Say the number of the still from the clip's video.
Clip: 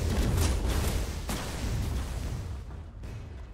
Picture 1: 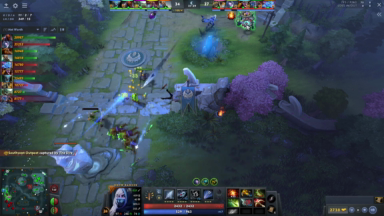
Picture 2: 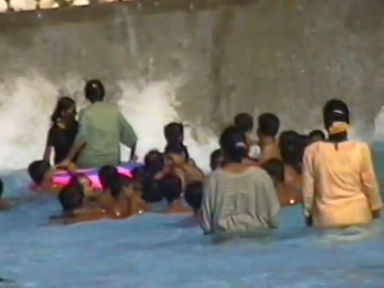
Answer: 1